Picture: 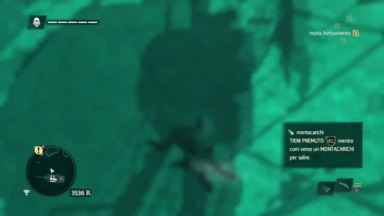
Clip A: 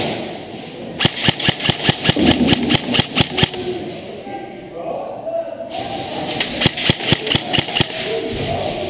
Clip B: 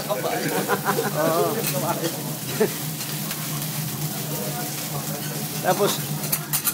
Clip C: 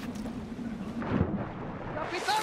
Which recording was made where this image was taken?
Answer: C